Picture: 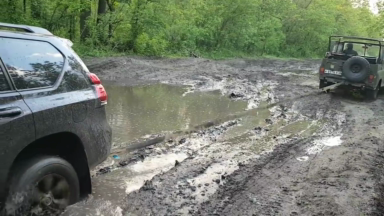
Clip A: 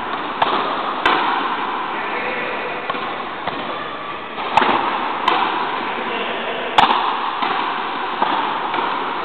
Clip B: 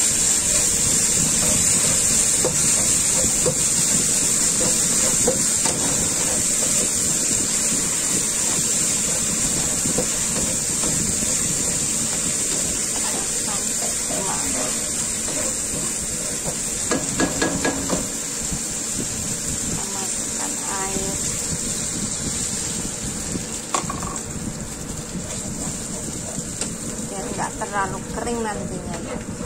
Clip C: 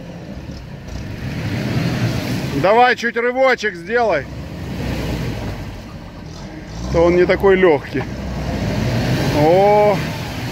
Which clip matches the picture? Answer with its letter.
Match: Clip C